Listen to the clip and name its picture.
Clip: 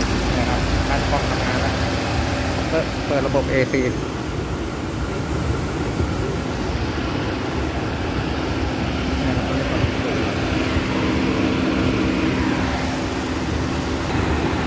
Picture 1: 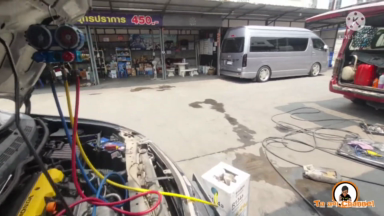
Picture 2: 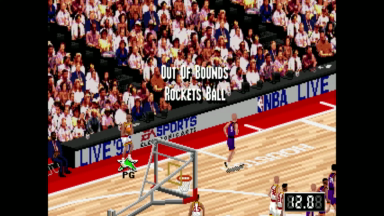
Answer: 1